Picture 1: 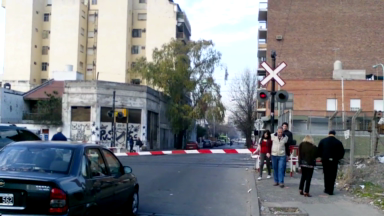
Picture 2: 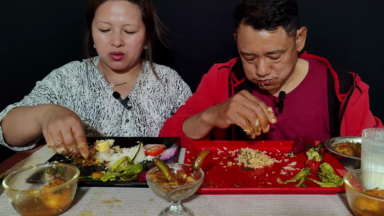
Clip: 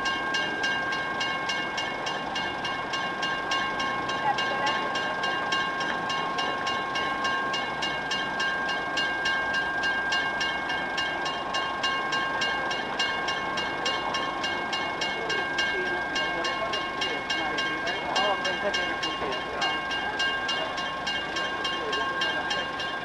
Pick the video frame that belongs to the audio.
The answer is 1